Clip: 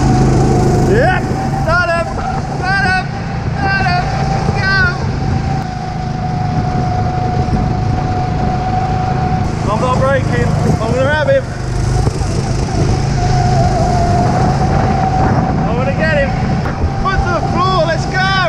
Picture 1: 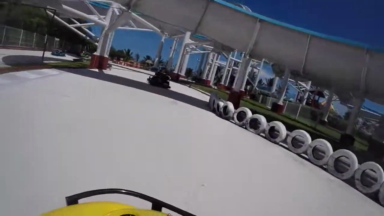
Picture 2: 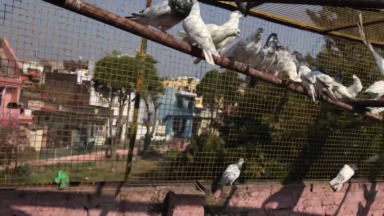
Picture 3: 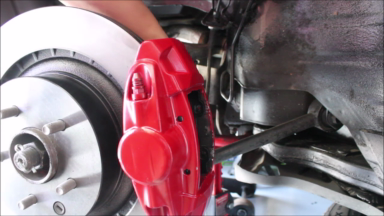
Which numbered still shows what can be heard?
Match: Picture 1